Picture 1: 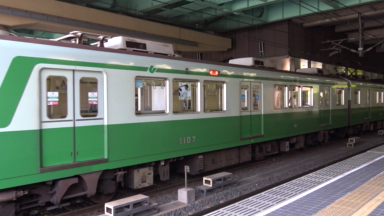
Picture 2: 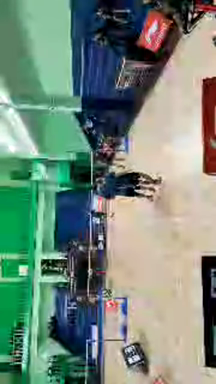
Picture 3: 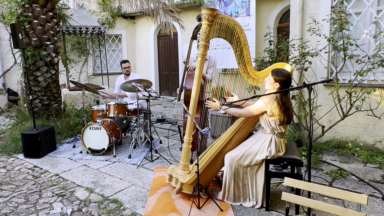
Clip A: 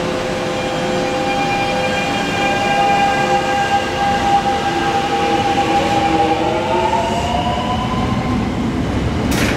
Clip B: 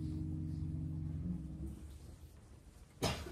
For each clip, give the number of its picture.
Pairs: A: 1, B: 3